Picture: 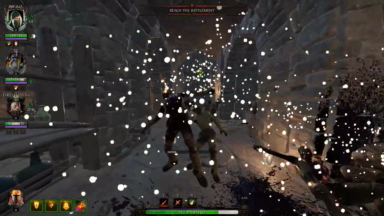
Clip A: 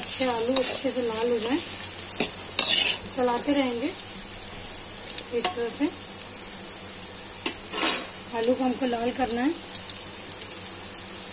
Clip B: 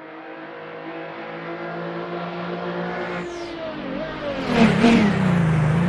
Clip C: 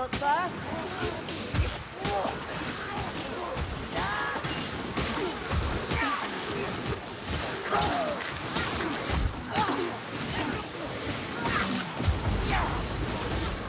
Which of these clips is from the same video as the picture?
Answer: C